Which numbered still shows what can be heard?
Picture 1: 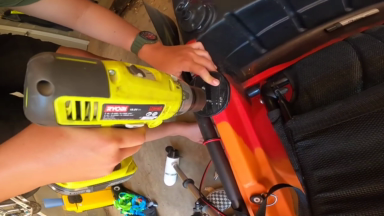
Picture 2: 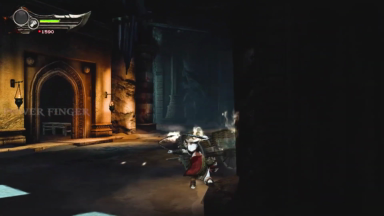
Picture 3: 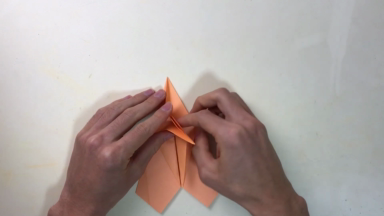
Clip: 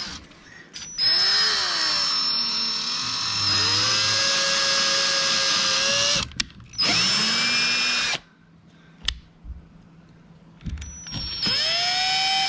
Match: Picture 1